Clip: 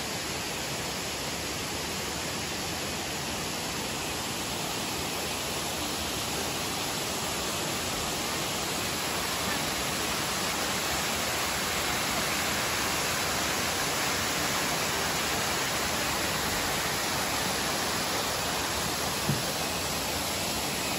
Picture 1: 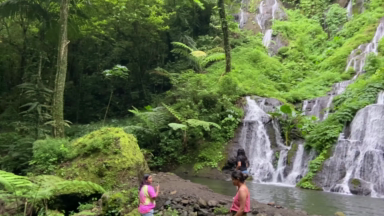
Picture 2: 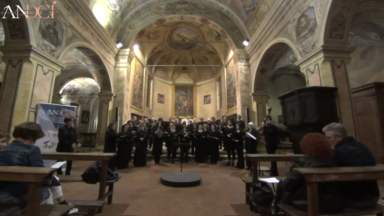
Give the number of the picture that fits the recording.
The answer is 1